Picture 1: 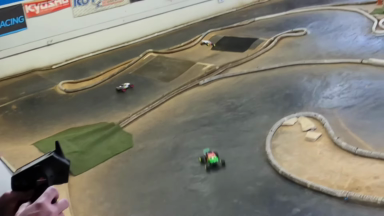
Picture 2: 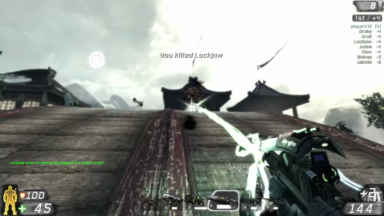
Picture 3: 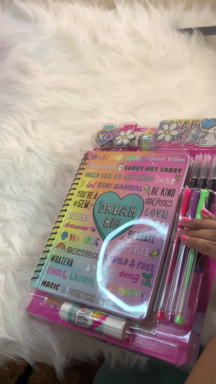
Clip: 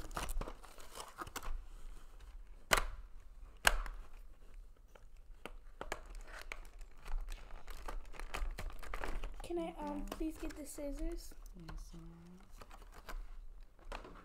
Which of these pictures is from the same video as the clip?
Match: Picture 3